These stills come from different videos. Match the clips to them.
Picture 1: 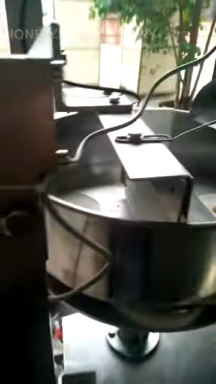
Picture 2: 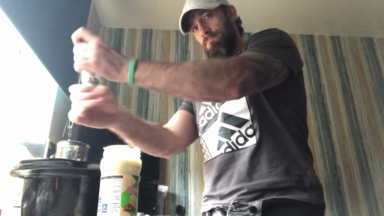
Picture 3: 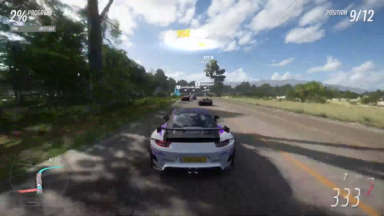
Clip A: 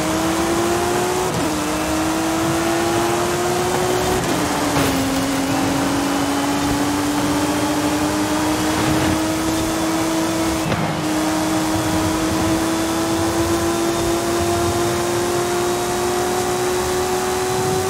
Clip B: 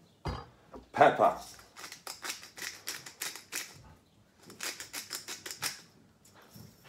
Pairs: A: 3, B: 2